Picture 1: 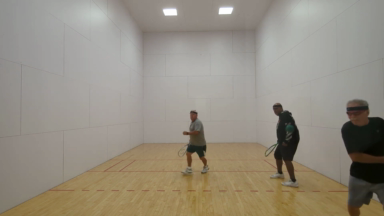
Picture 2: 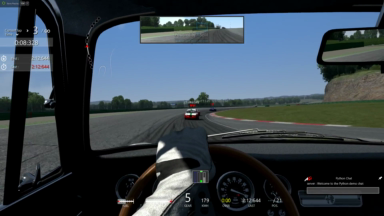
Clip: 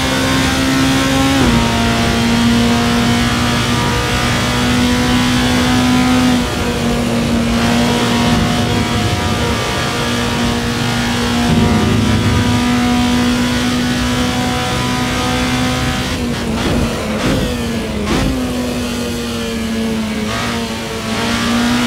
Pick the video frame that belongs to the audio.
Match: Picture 2